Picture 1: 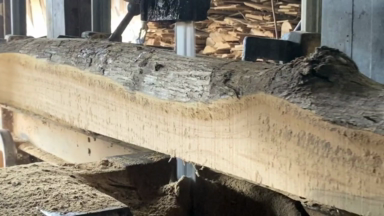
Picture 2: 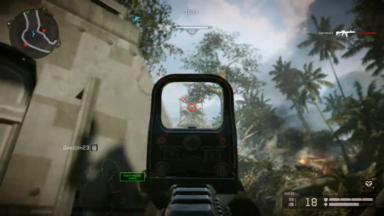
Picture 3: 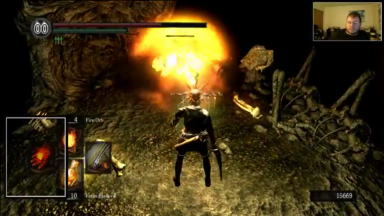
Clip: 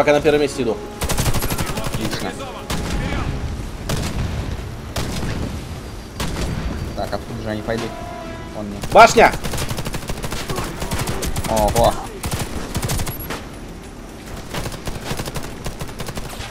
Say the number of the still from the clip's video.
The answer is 2